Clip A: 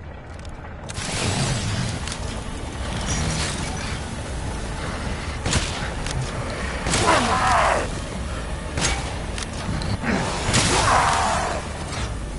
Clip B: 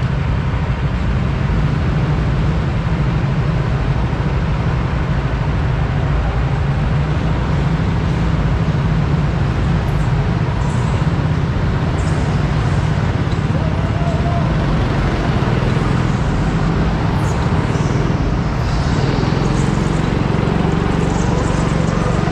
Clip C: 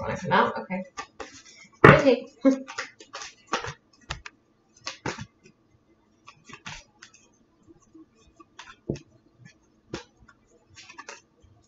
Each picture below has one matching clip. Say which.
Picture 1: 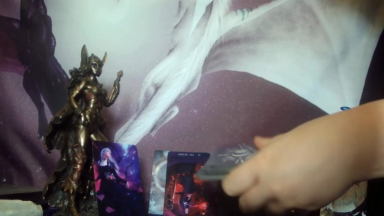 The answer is C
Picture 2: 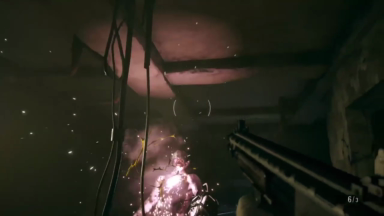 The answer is A